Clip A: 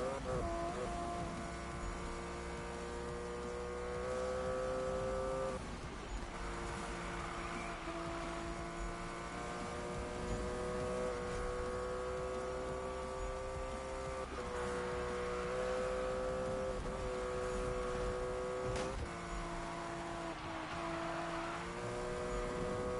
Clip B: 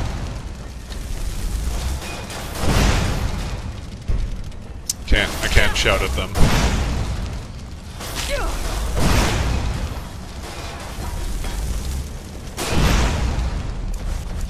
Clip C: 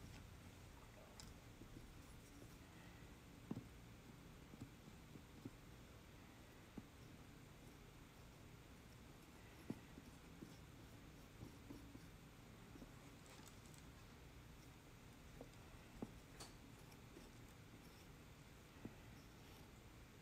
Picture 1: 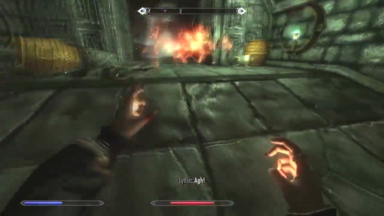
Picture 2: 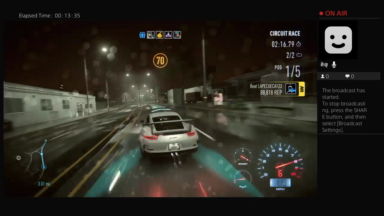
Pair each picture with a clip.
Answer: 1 B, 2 A